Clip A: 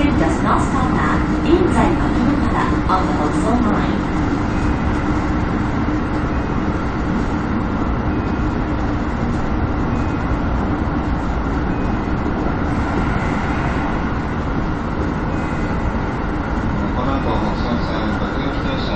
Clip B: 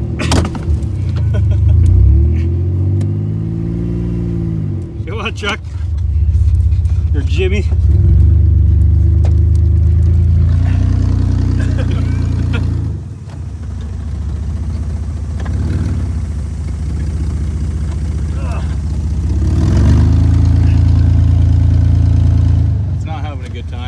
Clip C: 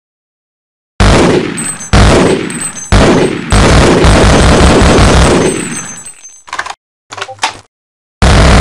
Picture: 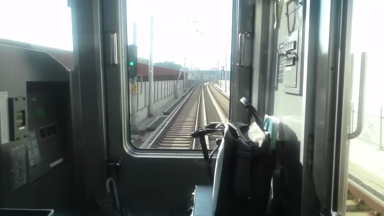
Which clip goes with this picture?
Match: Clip A